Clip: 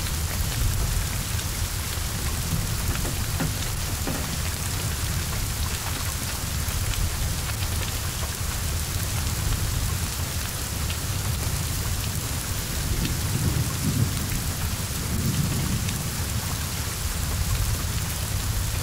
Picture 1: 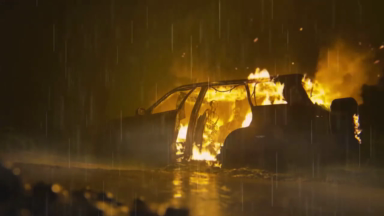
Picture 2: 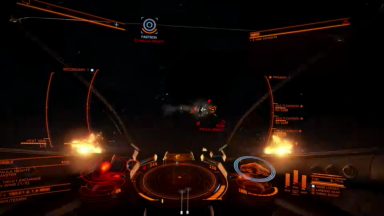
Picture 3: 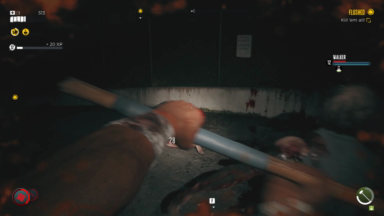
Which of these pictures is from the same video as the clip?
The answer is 1